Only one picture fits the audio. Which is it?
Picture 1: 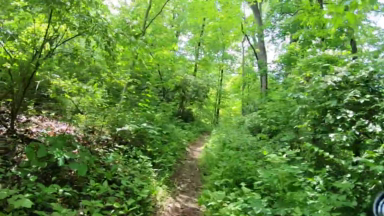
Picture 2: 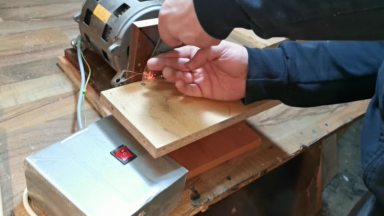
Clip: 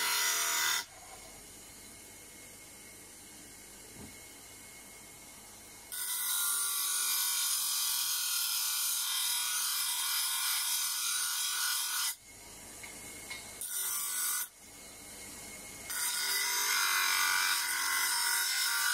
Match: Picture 2